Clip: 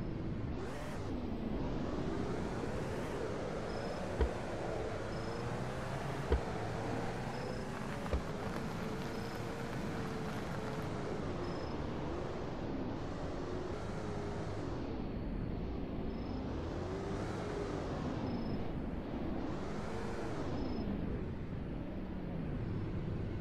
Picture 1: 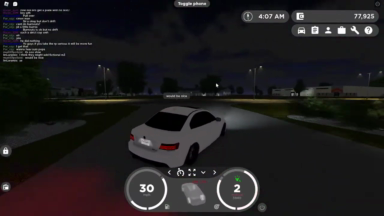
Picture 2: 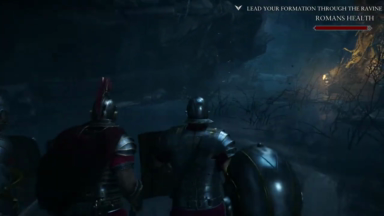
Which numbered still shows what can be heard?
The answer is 1